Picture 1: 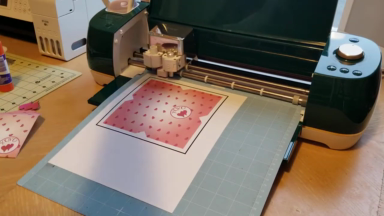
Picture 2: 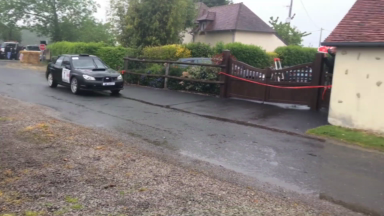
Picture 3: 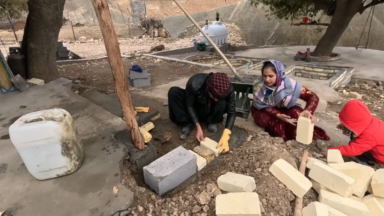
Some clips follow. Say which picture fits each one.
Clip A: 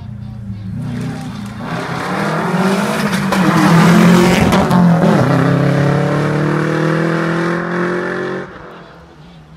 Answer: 2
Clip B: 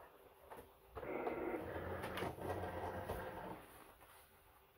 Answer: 1